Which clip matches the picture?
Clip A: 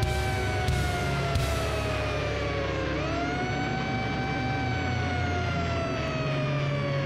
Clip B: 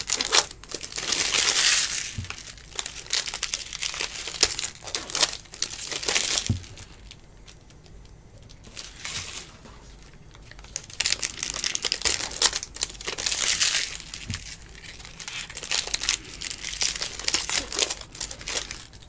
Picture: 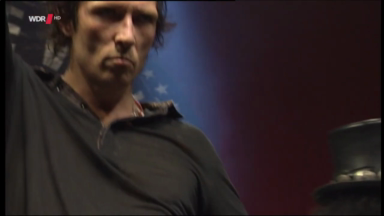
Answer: A